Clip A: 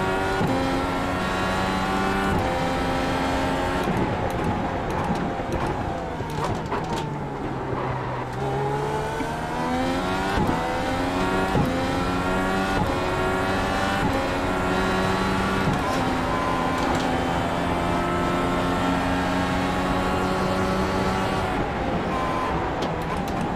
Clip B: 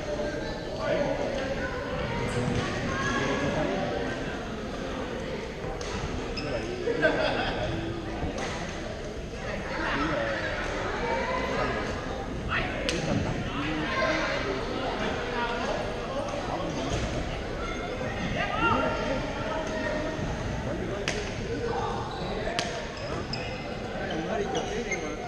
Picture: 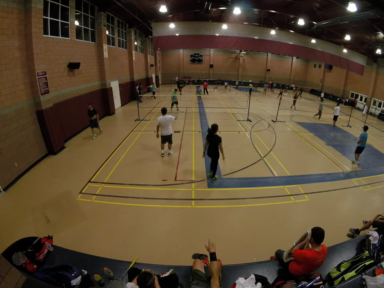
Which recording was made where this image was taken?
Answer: B